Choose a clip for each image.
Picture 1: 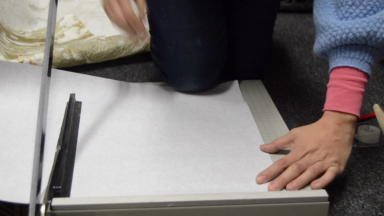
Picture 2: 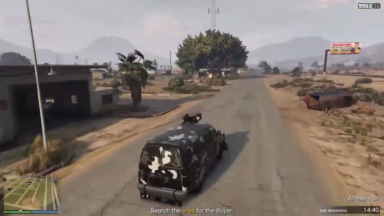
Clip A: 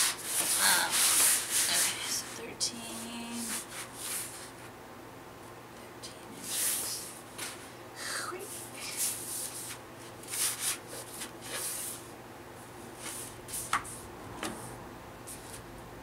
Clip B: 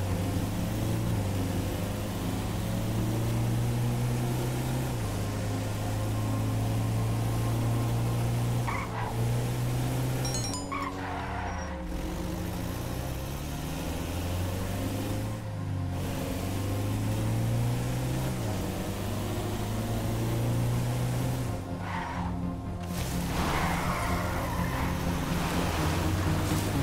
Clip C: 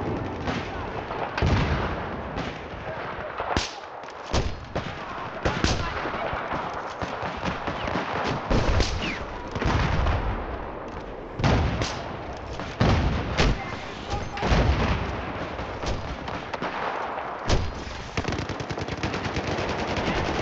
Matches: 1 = A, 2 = B